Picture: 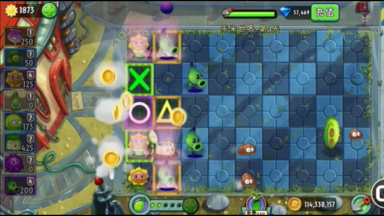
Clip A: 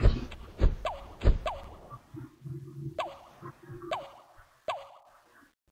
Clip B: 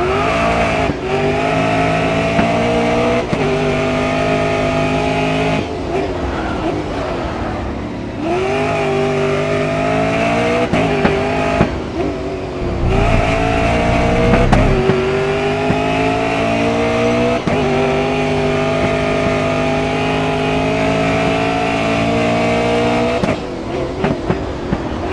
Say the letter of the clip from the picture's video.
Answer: A